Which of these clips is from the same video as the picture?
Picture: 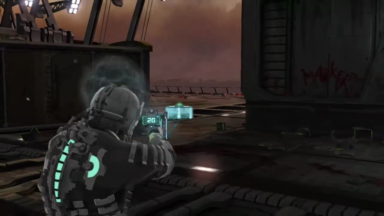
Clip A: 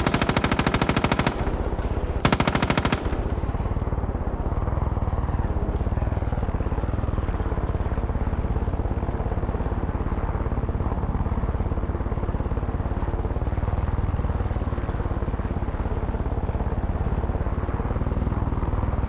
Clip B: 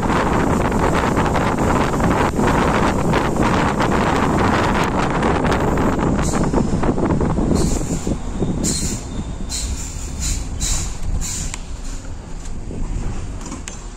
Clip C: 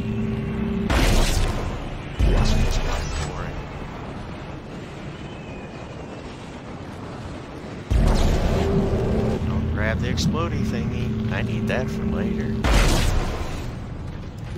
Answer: C